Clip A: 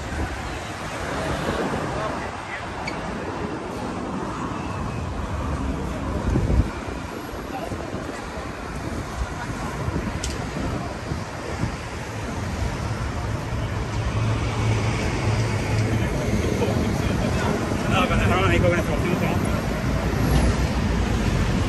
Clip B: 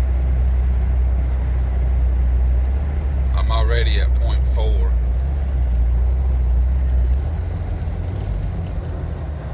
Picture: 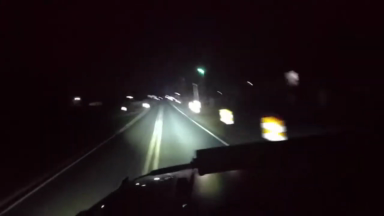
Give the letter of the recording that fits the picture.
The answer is B